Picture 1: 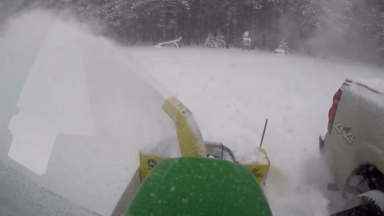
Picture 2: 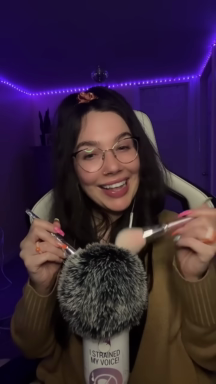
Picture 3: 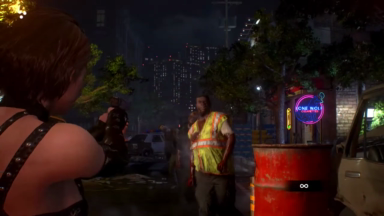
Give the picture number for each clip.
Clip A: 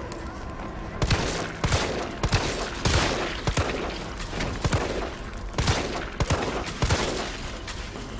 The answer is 3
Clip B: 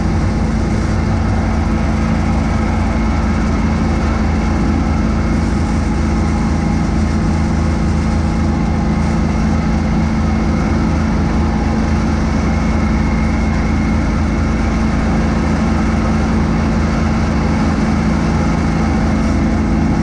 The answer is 1